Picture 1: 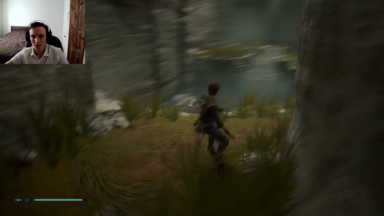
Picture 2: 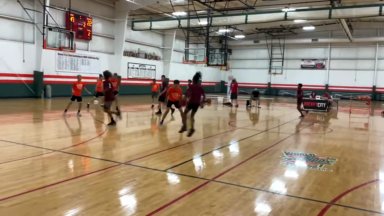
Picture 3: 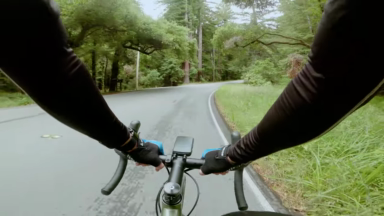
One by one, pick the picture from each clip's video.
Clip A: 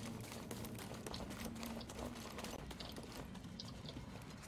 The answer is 1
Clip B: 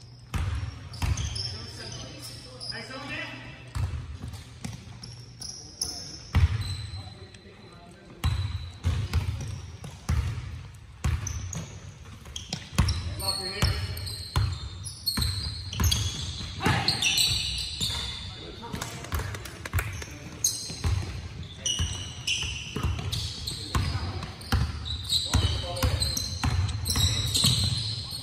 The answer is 2